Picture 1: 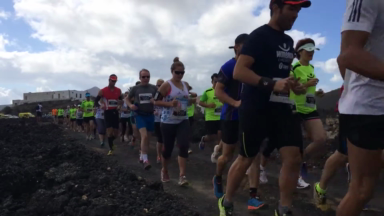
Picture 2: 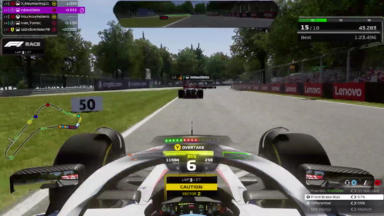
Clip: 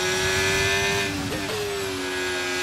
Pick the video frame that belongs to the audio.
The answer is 2